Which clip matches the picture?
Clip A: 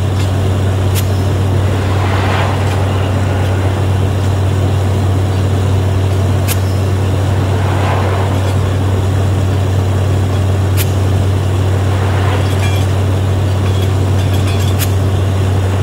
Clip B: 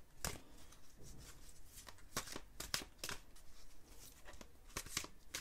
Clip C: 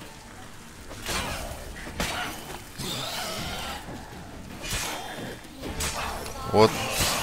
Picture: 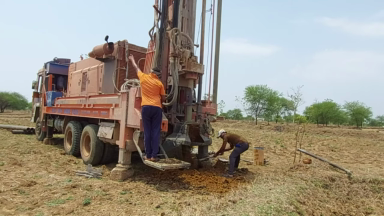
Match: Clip A